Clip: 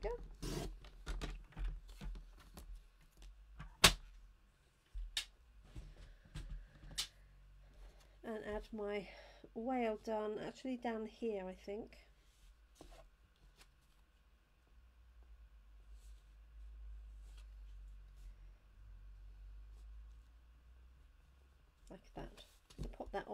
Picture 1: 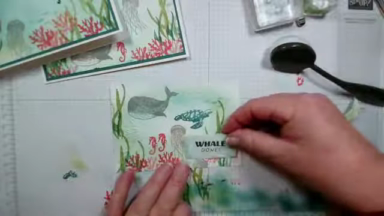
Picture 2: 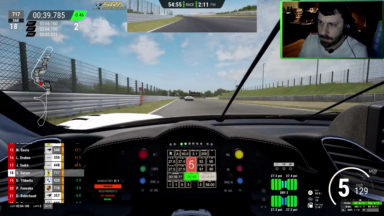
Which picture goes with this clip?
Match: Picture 1